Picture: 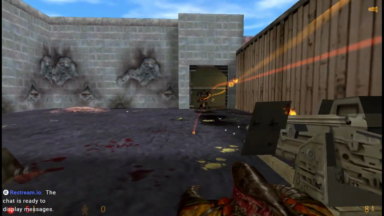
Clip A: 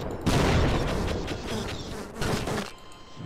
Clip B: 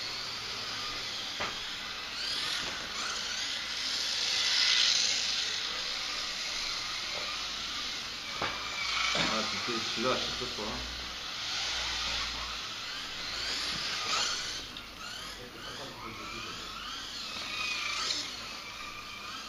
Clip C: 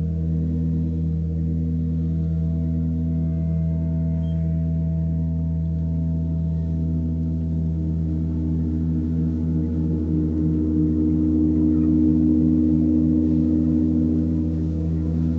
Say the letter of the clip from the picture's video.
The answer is A